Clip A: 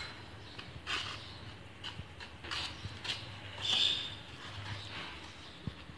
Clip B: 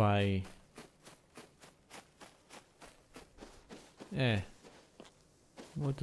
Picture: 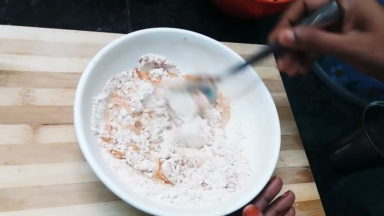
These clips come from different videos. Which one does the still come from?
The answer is A